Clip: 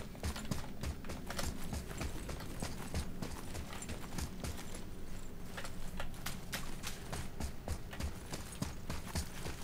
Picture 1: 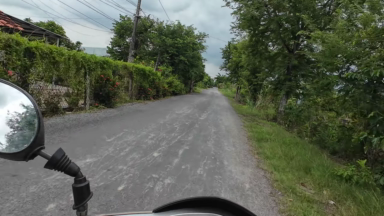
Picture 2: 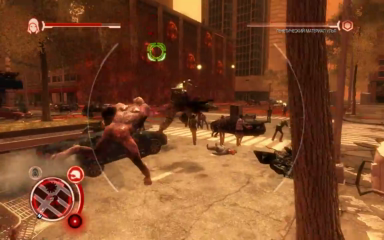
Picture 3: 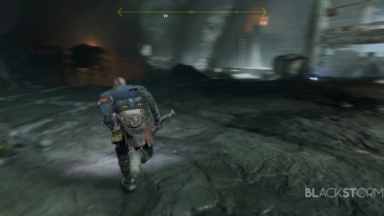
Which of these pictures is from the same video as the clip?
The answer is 3